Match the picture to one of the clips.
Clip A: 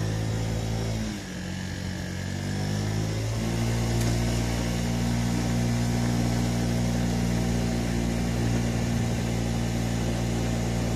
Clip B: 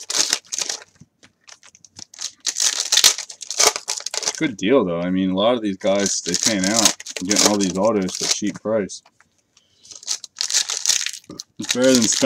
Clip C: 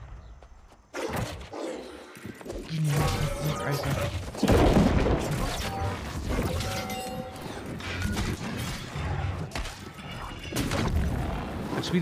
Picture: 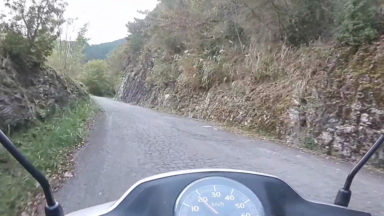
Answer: A